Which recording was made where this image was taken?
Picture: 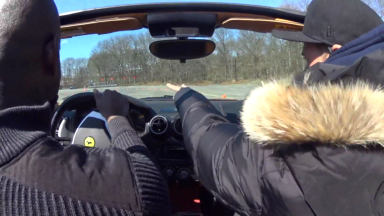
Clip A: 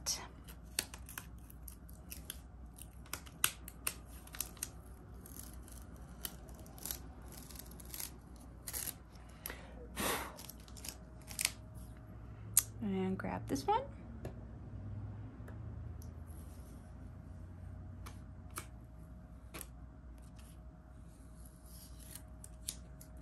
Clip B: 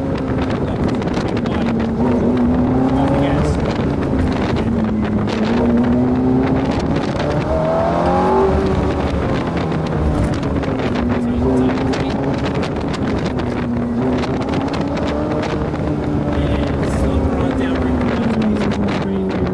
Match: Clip B